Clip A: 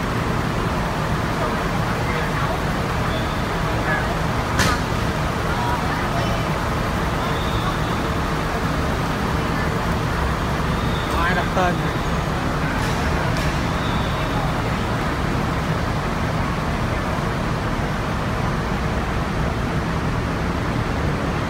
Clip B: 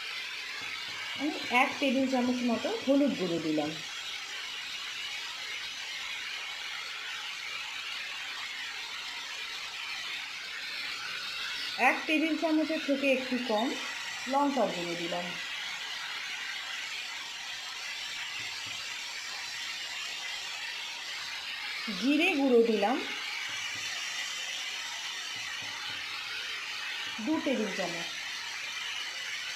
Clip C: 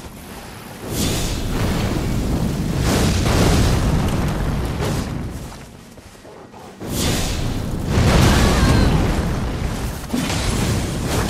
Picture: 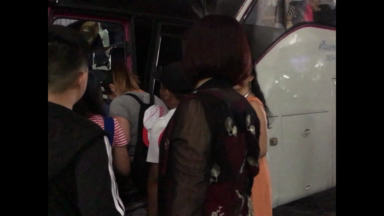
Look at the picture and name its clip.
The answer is A